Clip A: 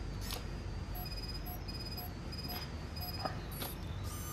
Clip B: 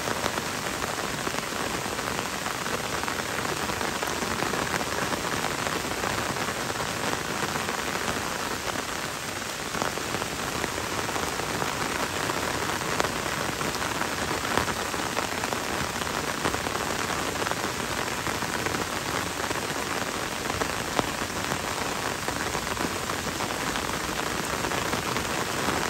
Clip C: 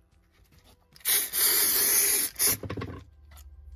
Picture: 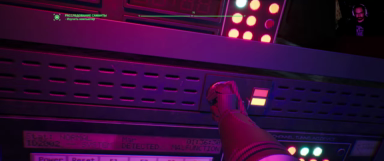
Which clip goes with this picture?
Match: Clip A